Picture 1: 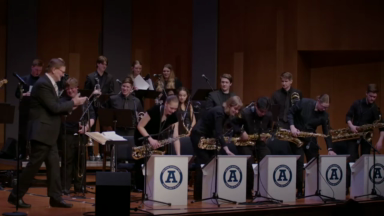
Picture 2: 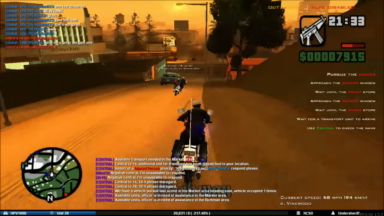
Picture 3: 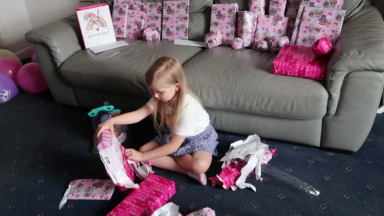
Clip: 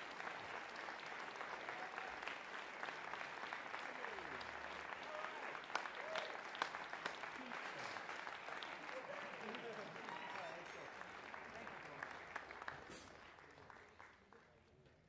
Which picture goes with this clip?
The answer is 1